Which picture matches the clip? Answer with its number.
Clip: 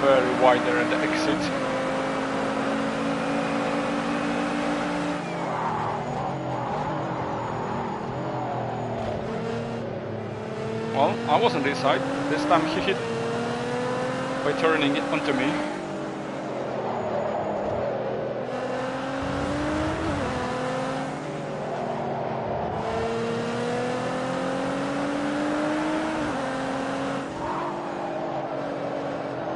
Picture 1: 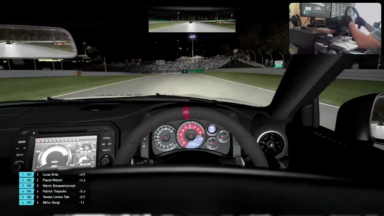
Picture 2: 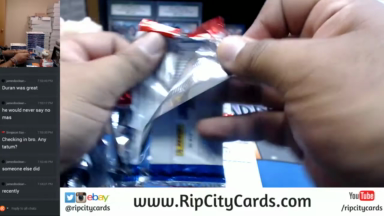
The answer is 1